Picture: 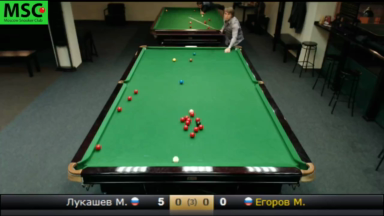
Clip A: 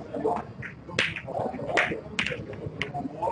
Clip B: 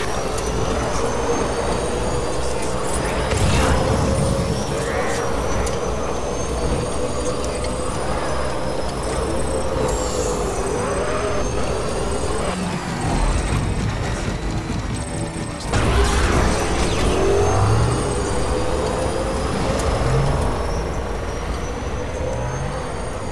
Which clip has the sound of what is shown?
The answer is A